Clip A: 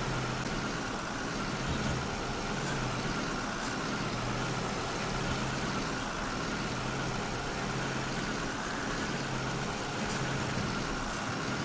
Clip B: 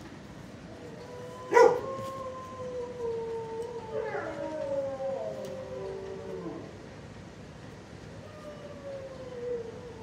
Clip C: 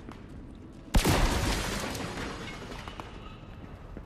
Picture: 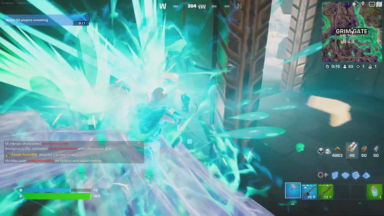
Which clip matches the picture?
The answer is C